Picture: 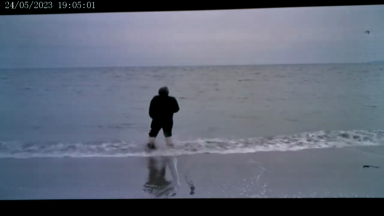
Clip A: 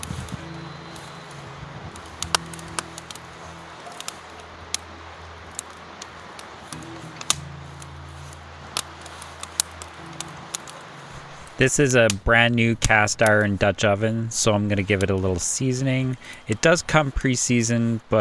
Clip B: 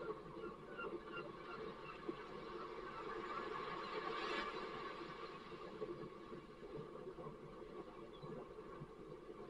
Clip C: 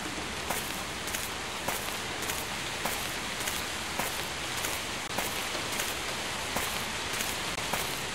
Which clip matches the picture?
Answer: B